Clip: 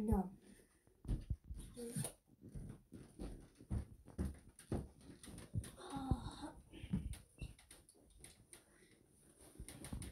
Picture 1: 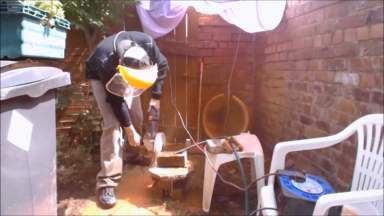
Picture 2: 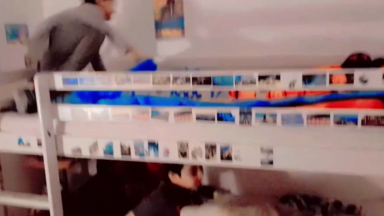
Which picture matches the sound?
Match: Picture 2